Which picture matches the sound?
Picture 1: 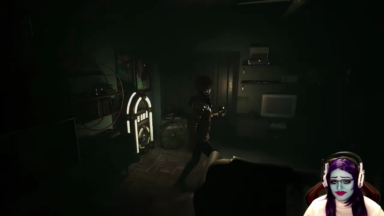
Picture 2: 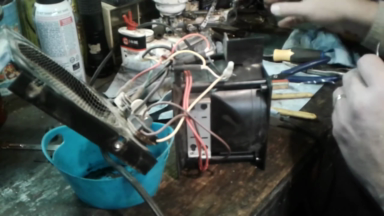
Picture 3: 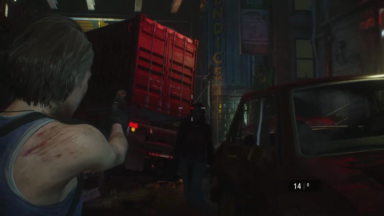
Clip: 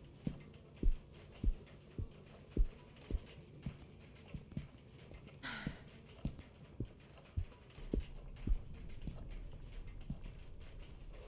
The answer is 1